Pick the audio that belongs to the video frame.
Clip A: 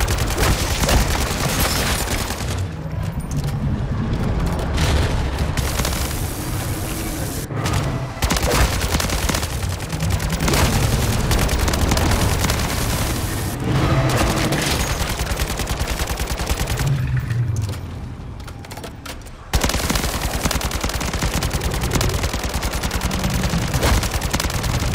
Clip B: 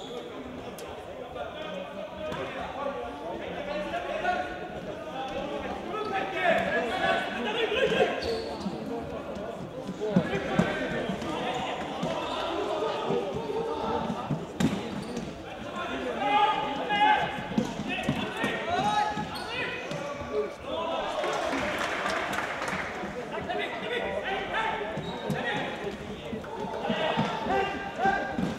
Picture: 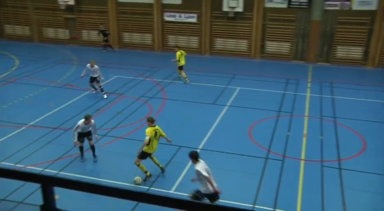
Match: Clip B